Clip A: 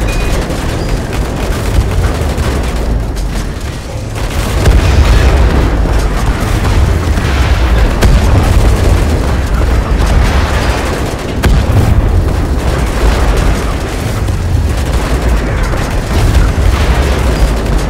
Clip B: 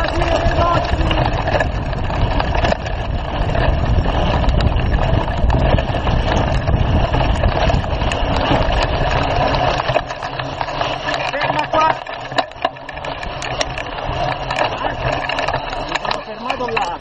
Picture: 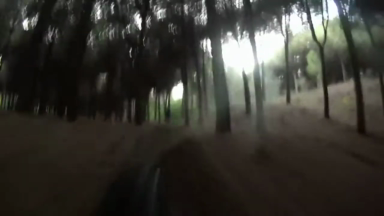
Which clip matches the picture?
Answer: B